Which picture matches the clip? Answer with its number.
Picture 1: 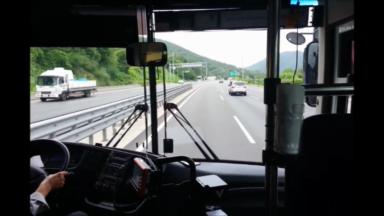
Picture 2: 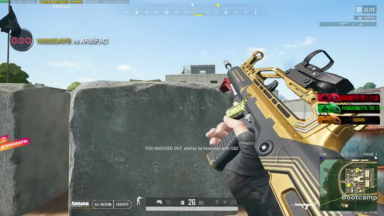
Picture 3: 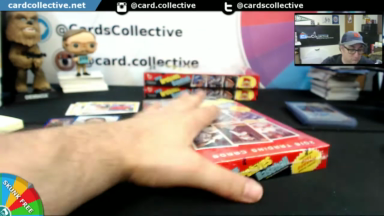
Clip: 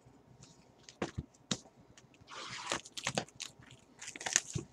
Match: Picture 3